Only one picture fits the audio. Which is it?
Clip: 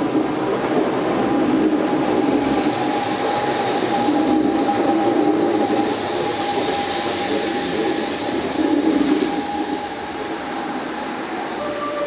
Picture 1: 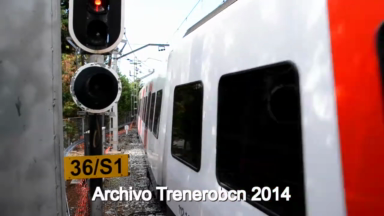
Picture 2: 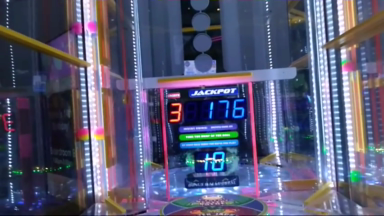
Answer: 1